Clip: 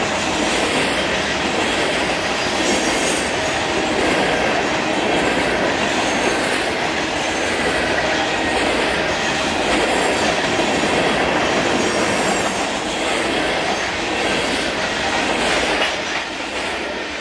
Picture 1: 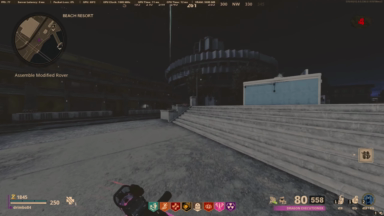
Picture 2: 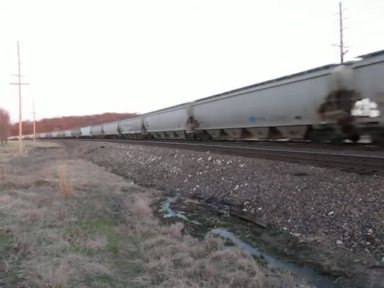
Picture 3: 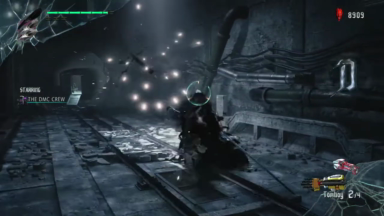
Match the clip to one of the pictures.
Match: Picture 2